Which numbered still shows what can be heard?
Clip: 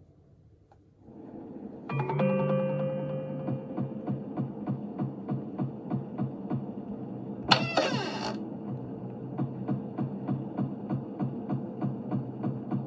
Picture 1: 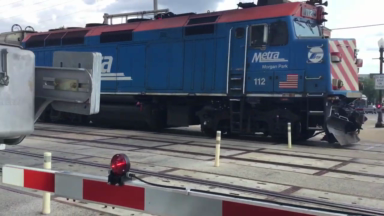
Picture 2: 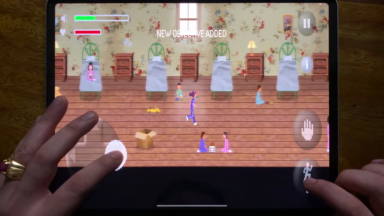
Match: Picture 2